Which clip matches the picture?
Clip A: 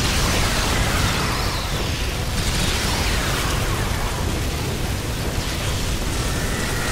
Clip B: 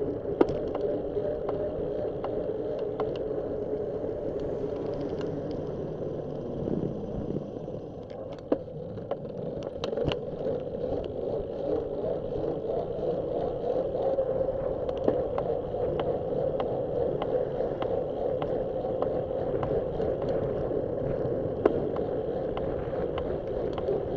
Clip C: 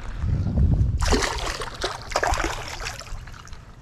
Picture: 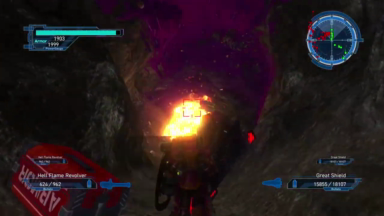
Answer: A